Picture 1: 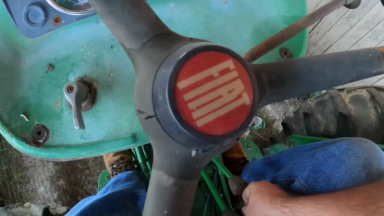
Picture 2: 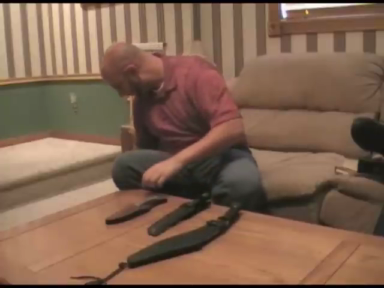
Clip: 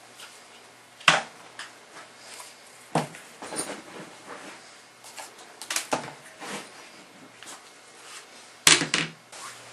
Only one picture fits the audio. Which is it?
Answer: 2